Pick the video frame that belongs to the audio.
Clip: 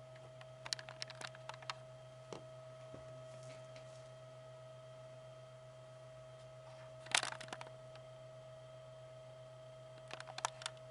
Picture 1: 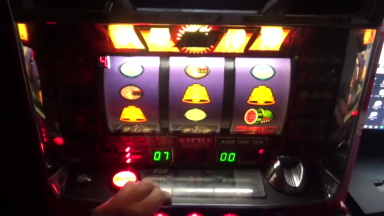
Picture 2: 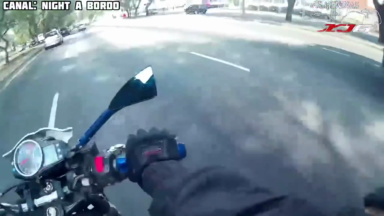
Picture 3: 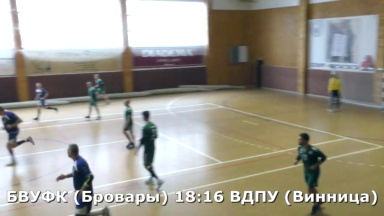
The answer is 1